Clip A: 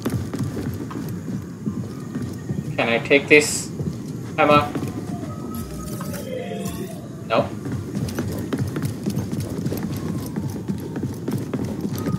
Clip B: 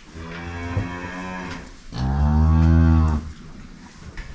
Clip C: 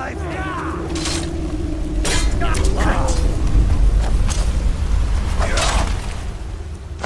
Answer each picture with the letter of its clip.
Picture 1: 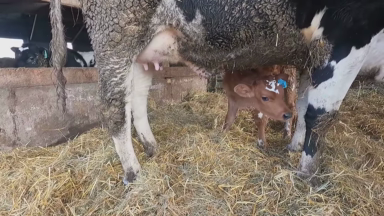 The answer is B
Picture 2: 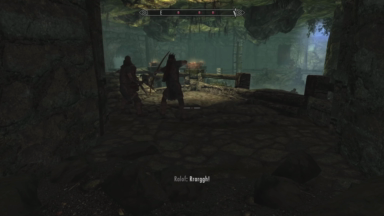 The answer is C